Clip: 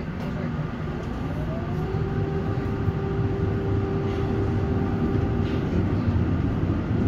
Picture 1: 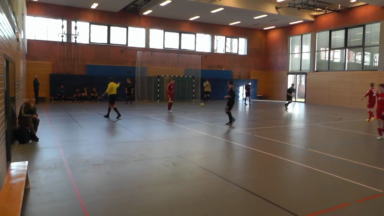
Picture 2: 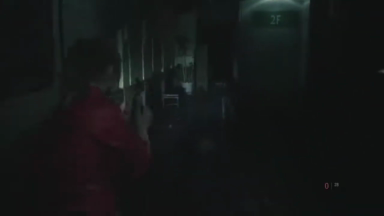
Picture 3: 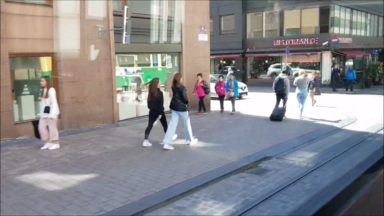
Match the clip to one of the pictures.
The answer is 3